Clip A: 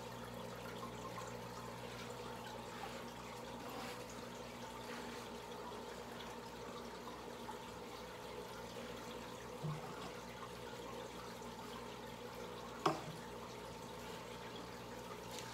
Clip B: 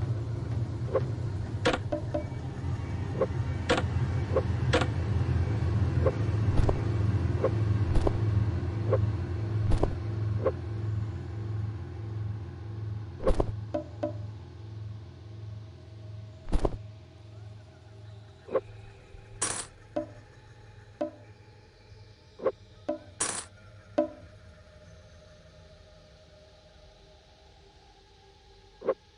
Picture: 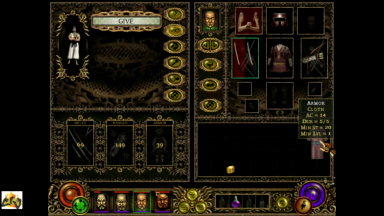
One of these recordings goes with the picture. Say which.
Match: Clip B